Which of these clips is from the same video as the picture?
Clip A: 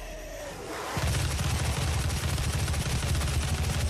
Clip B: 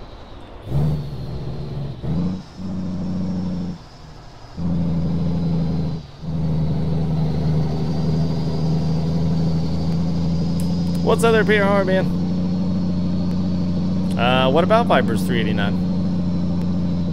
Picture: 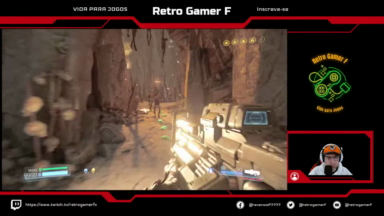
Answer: A